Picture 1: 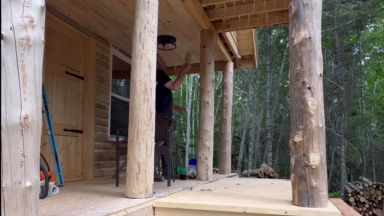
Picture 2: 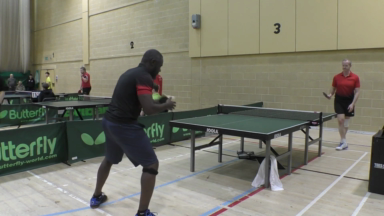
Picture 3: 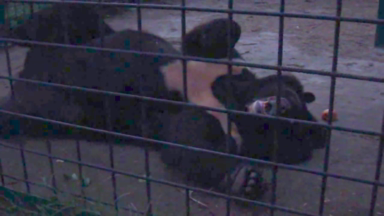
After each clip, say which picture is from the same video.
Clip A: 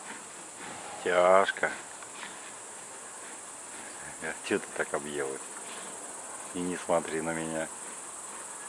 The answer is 3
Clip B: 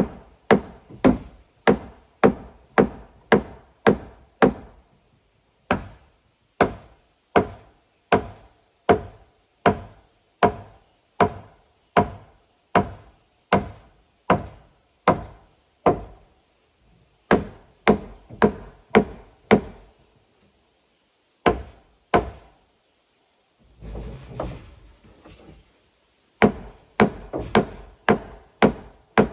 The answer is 1